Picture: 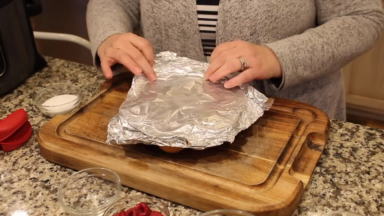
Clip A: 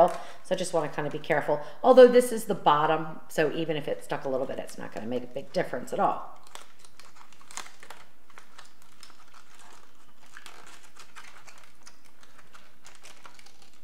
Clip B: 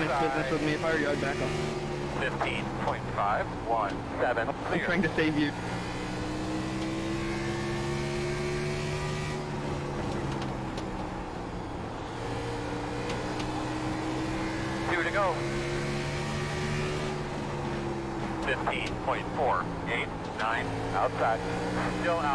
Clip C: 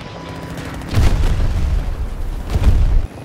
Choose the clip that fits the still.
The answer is A